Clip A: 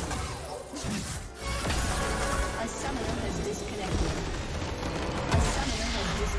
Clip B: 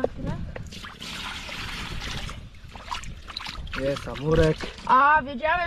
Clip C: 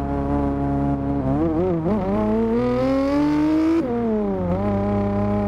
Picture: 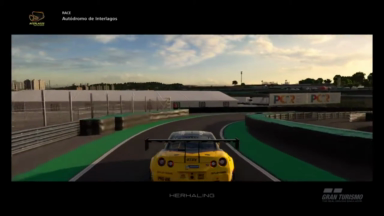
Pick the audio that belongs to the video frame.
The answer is C